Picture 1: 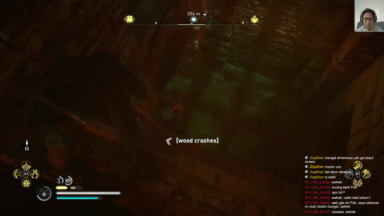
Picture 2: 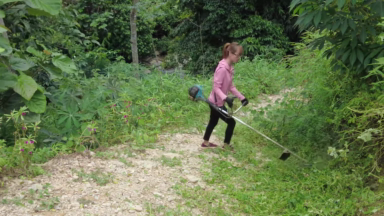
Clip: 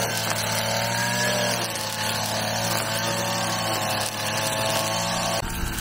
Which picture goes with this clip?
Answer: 2